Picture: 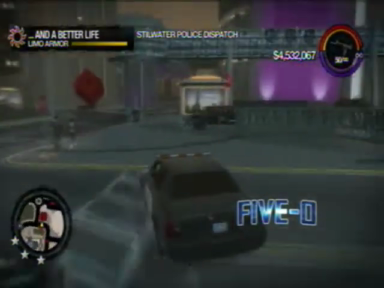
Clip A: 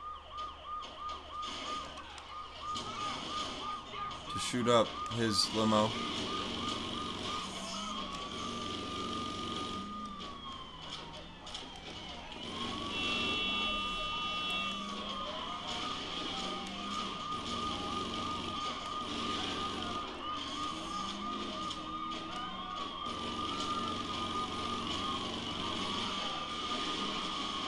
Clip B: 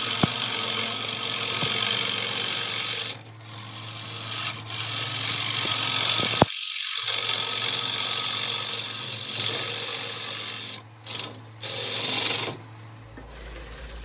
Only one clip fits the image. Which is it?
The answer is A